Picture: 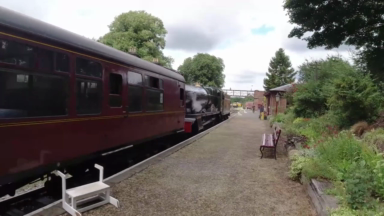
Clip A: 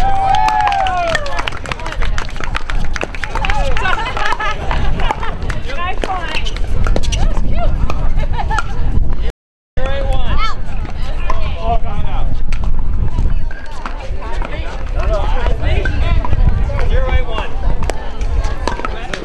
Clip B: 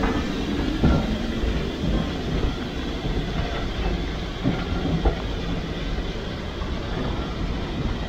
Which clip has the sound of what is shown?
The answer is B